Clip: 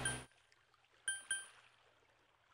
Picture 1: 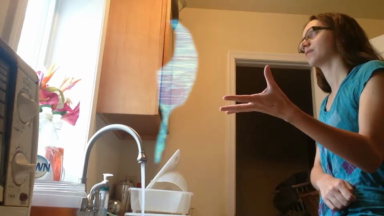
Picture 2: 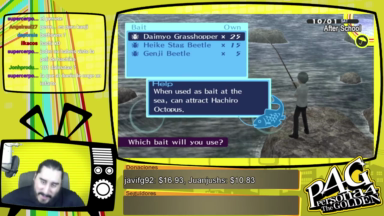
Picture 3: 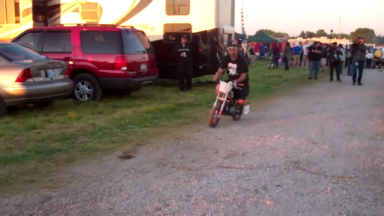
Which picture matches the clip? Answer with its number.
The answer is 2